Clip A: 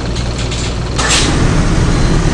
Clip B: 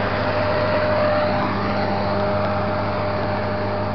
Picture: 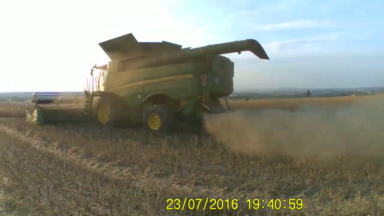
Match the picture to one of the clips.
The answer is B